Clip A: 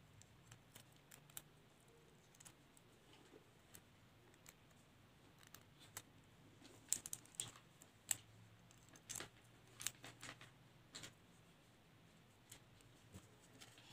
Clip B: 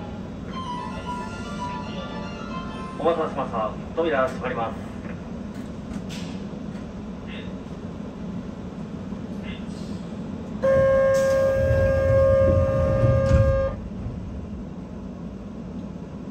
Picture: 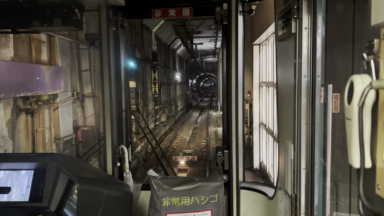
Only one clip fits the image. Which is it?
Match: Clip B